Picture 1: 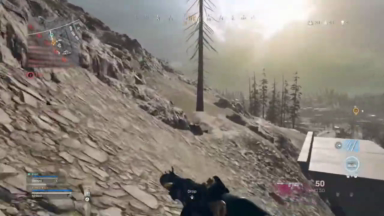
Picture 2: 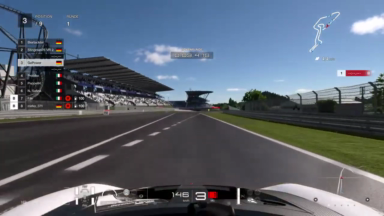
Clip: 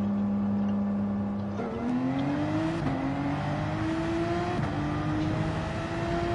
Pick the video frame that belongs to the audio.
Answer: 2